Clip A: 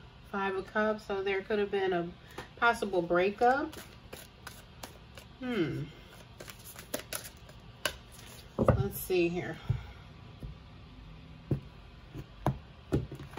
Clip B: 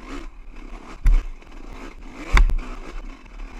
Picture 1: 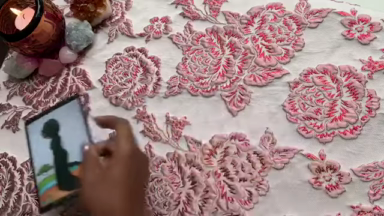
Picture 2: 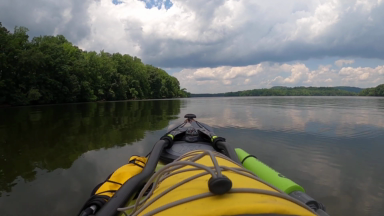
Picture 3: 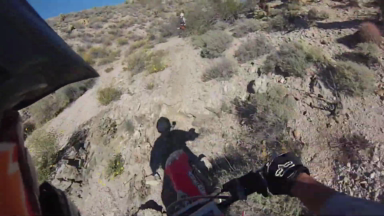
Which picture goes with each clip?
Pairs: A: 1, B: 3